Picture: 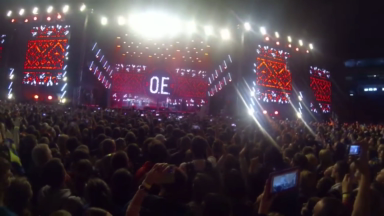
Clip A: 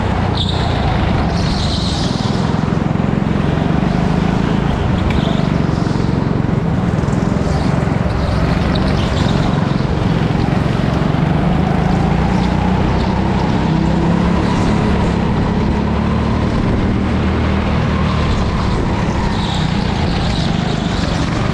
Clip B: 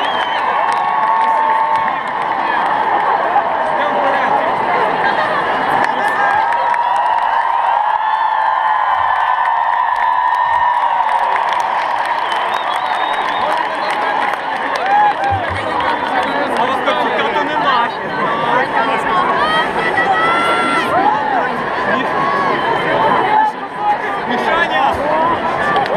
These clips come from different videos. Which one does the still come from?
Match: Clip B